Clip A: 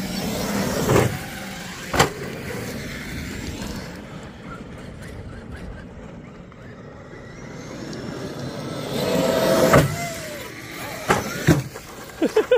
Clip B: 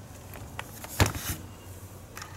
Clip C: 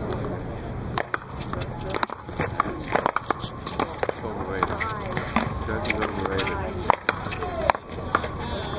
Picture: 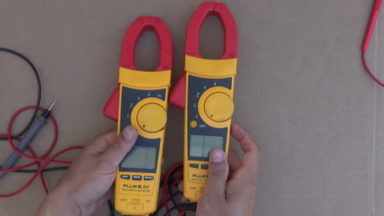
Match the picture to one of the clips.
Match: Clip B